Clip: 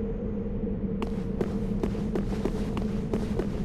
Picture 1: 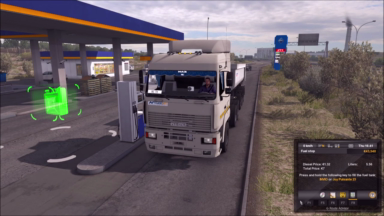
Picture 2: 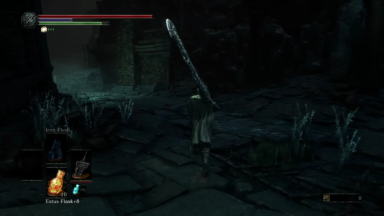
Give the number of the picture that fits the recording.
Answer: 2